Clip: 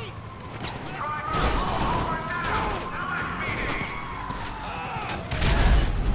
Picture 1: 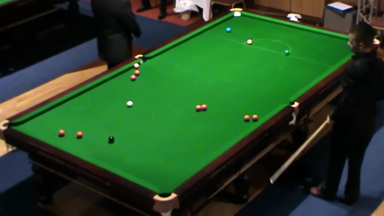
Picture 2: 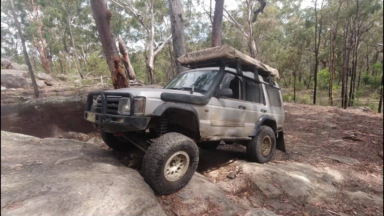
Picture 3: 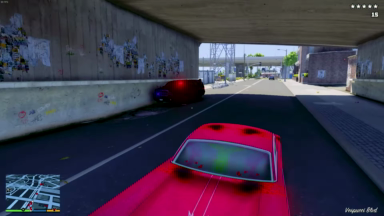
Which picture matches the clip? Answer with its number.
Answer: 3